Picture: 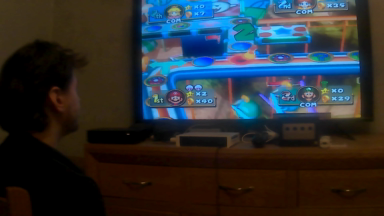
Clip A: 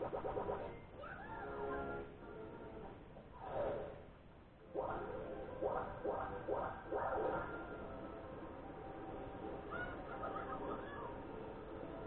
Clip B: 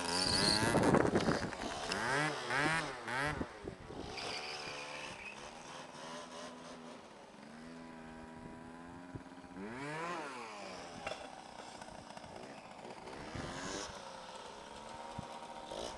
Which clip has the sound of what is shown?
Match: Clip A